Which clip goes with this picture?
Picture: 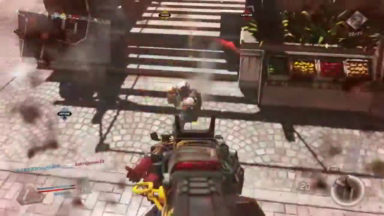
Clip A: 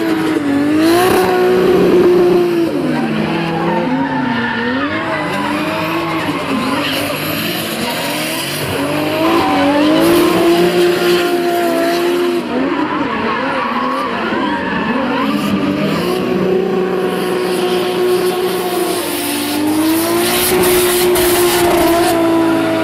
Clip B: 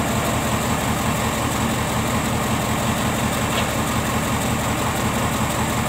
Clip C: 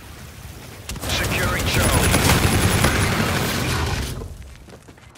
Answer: C